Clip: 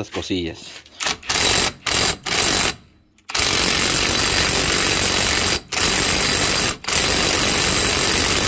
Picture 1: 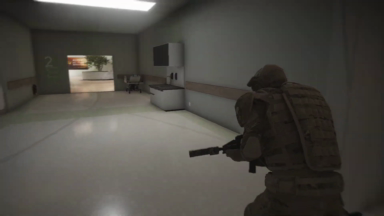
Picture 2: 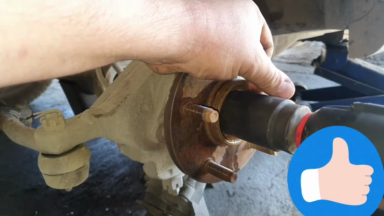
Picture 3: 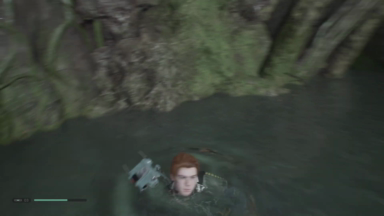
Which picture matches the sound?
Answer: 2